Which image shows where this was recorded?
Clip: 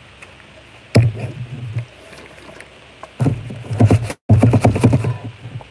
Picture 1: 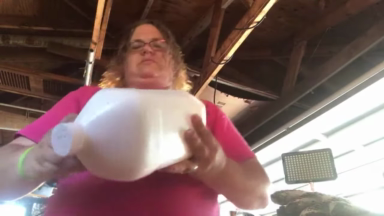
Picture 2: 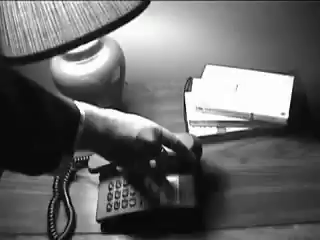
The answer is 1